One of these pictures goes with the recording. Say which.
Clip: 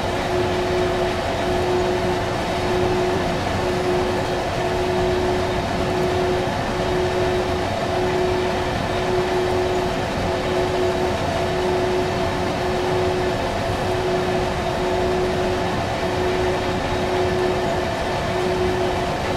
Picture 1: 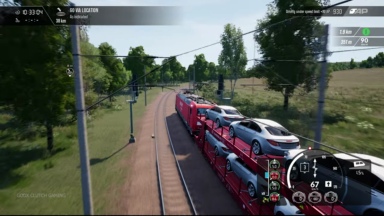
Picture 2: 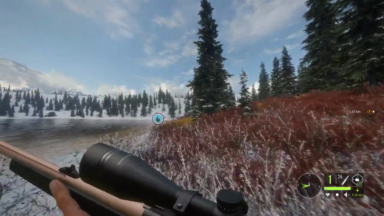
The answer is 1